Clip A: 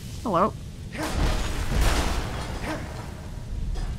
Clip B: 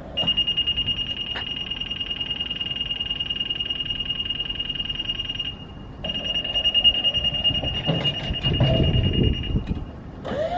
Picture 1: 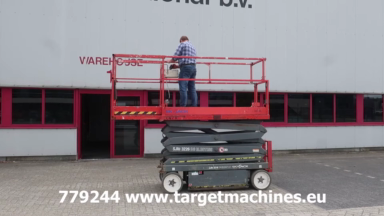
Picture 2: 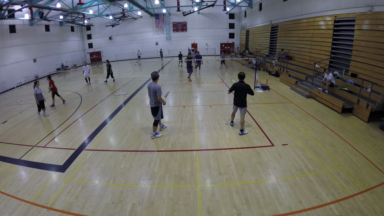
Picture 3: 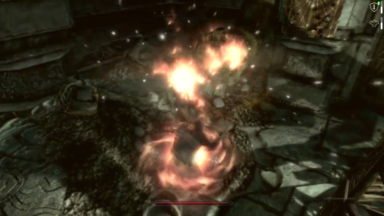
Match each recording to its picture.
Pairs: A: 3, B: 1